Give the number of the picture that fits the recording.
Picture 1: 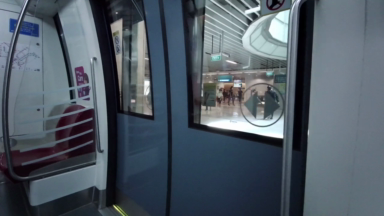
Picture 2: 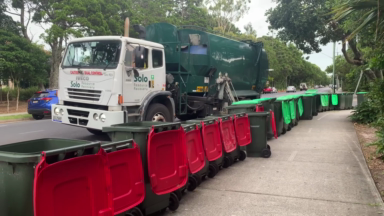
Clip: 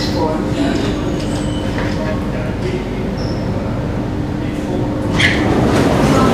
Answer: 1